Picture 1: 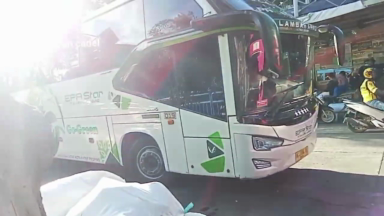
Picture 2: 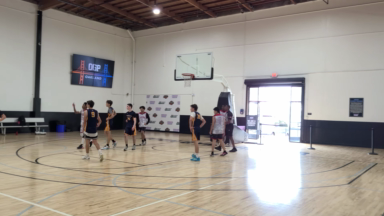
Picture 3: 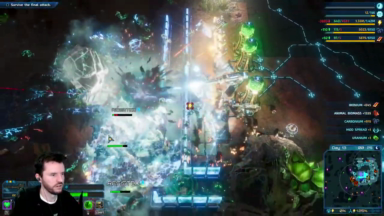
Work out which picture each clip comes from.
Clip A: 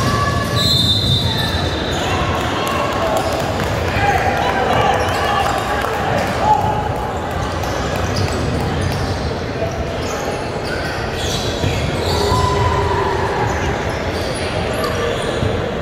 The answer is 2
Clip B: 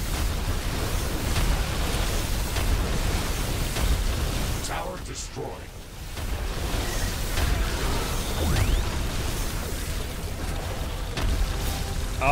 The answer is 3